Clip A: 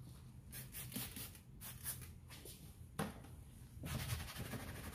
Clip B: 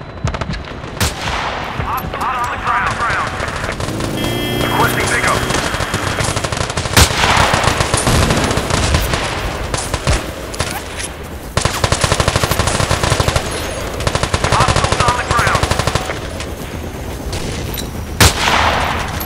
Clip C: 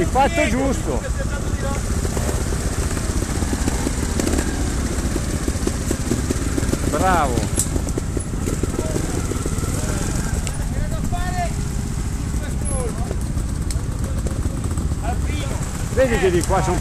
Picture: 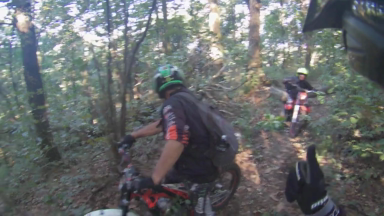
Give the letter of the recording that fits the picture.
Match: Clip C